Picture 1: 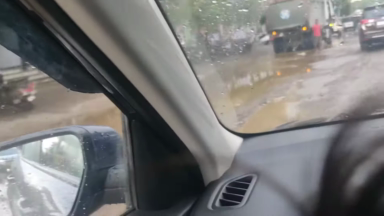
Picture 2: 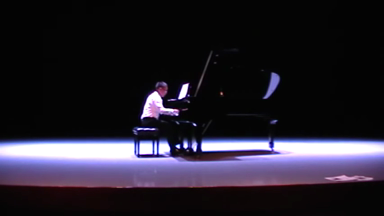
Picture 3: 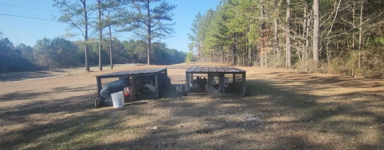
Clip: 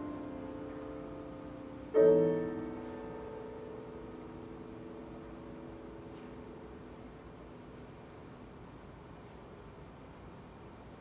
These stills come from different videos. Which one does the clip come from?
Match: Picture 2